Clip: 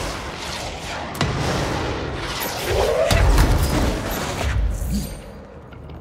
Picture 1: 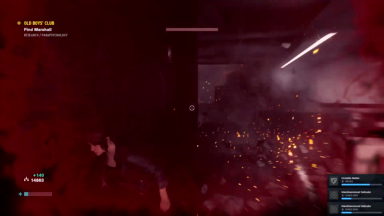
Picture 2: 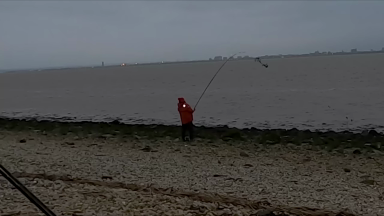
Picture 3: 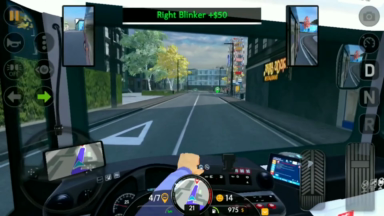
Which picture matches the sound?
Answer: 1